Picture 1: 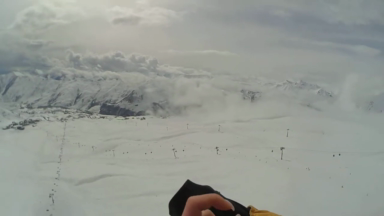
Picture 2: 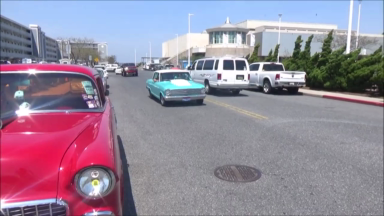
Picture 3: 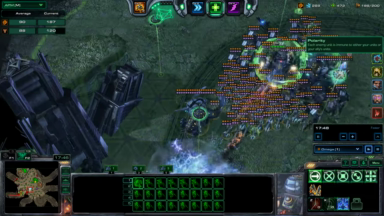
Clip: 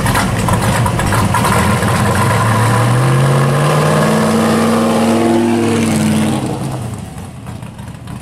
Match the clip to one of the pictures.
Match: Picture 2